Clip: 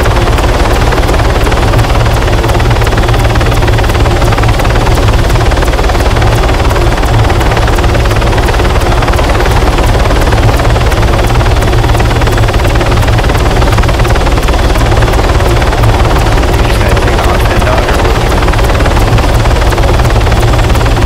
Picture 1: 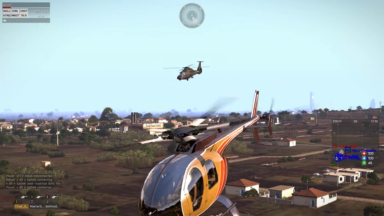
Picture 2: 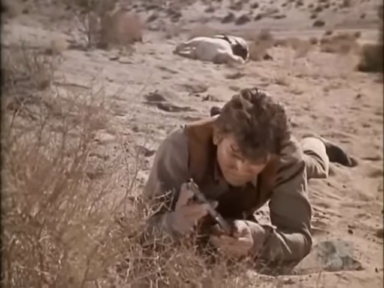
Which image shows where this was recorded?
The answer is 1